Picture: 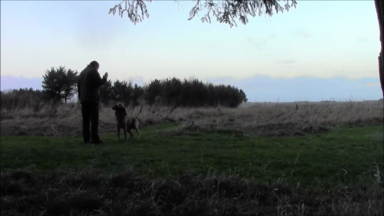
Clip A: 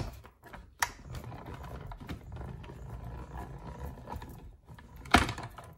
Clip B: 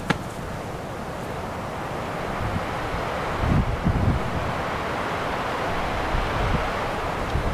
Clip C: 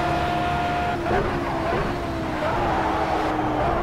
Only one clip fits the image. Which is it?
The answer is B